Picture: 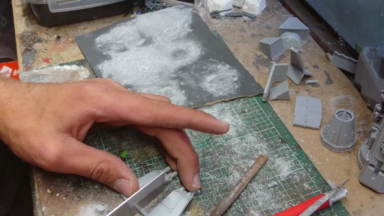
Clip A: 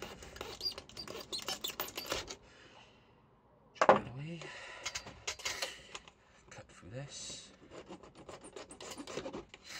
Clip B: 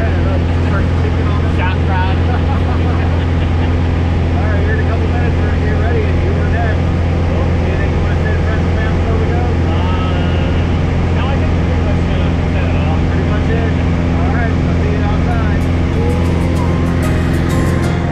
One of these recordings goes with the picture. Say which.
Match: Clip A